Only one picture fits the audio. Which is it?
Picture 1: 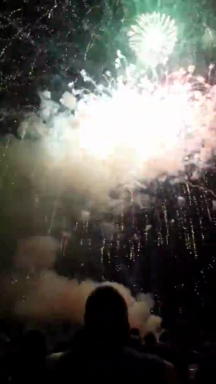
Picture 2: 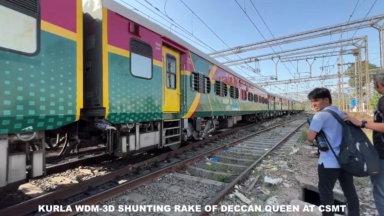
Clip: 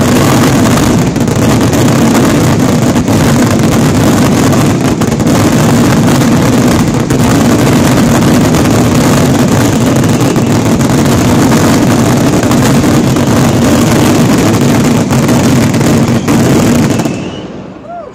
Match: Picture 1